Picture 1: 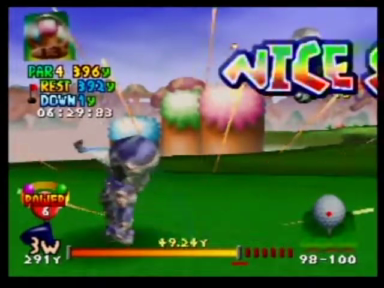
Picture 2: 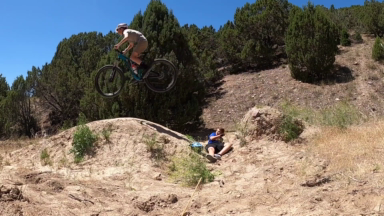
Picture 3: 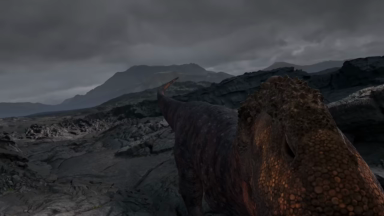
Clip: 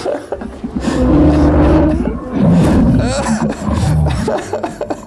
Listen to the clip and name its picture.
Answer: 3